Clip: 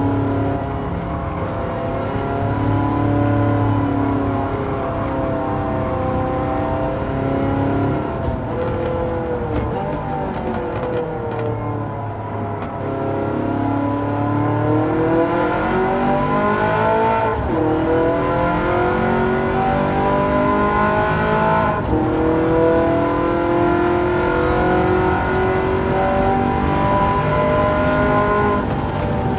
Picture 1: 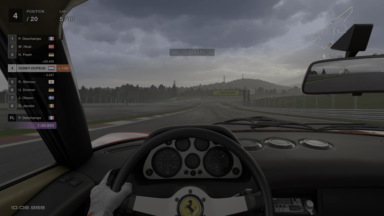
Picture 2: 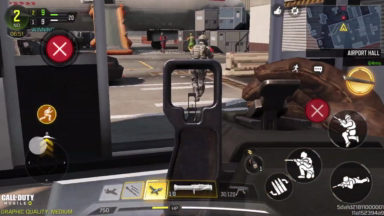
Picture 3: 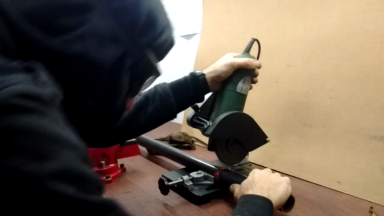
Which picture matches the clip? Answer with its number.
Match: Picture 1